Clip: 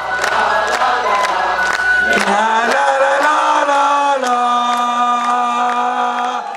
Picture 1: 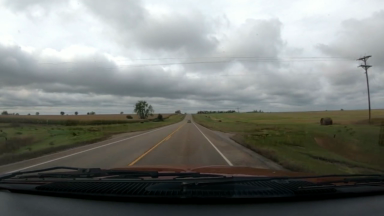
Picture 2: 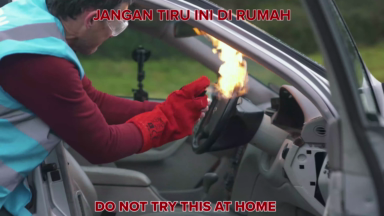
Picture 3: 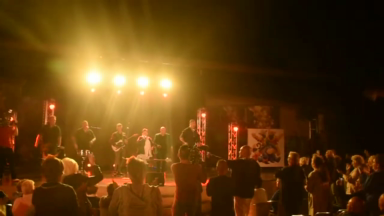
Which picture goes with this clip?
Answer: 3